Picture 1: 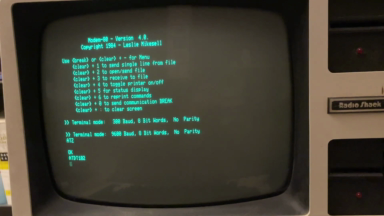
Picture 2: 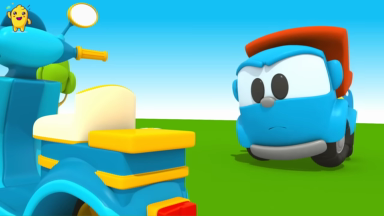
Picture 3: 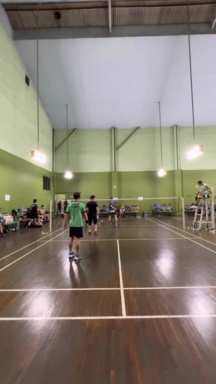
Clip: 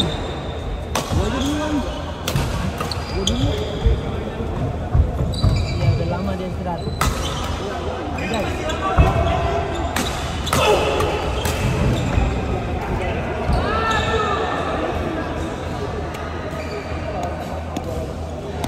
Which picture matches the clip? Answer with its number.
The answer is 3